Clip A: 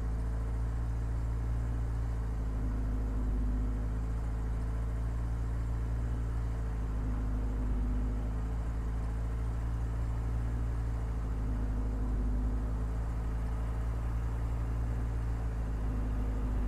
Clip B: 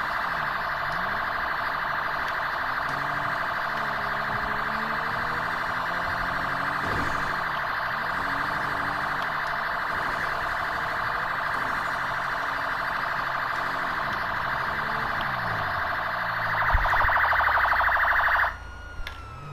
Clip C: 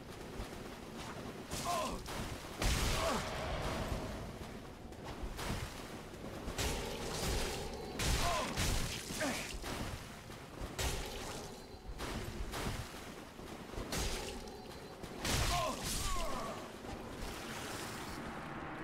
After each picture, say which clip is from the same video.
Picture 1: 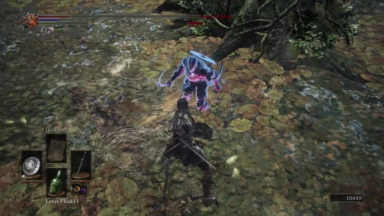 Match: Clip C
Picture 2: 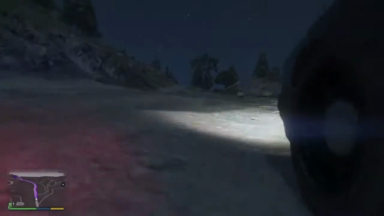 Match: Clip B